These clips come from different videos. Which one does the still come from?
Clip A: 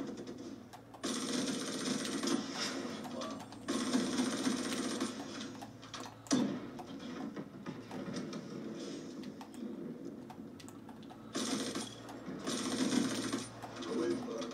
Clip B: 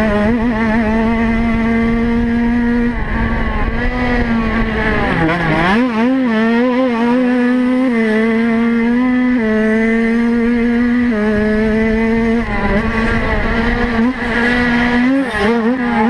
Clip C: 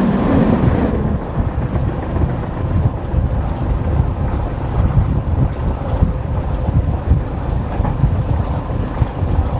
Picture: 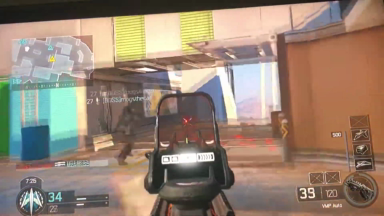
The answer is A